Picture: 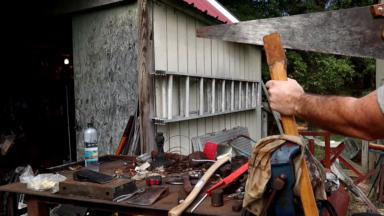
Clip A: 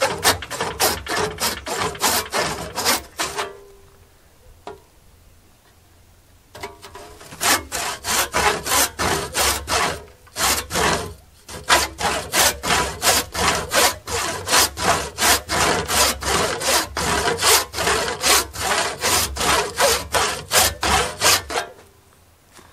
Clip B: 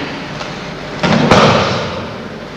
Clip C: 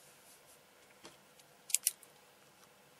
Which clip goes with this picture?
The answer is A